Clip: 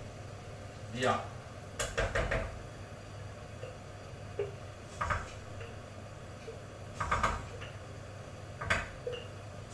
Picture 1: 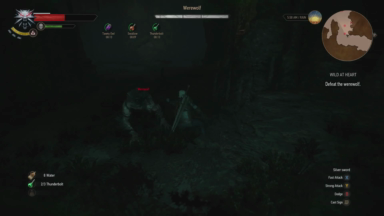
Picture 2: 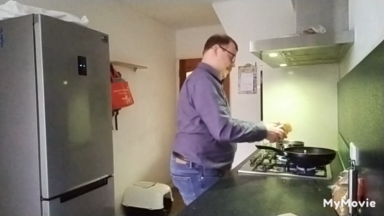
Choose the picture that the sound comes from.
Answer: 2